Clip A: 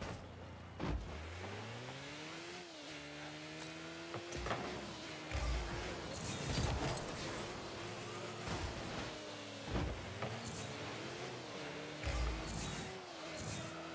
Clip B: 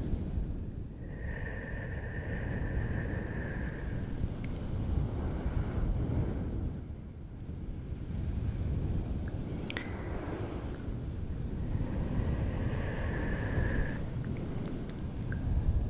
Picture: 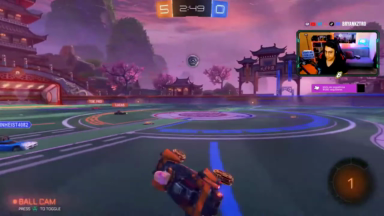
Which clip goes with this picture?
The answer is A